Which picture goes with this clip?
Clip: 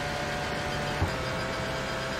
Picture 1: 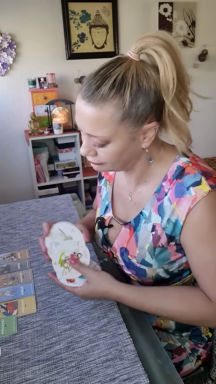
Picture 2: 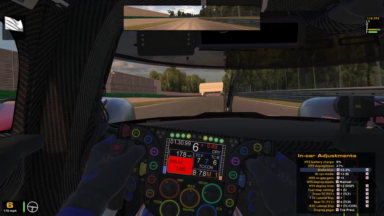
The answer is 2